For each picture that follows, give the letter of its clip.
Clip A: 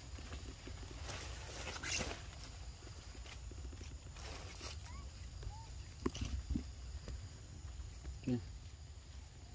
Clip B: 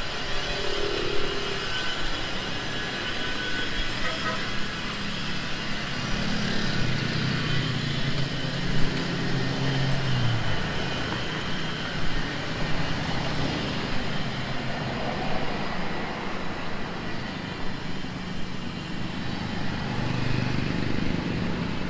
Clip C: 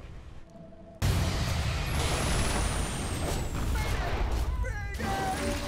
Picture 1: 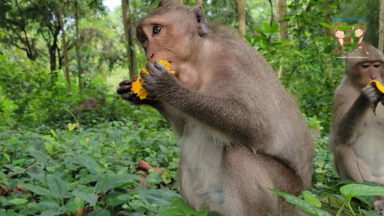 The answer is A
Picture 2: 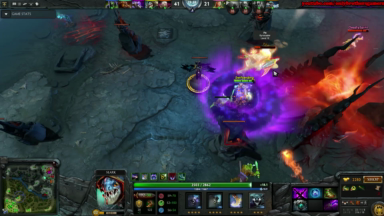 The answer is C